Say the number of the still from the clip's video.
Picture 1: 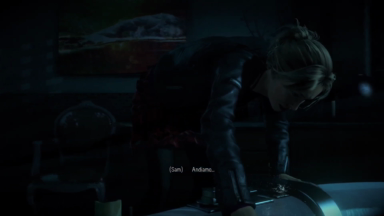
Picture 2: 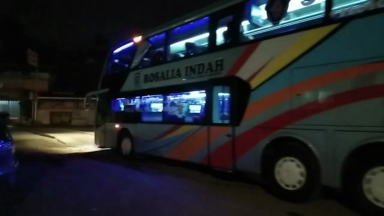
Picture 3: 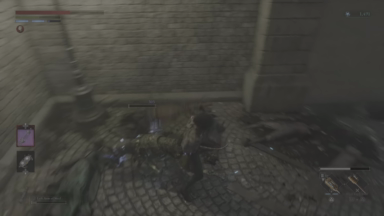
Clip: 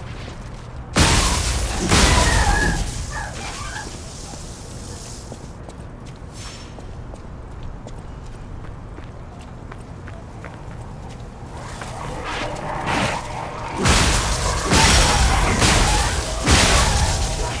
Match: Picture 3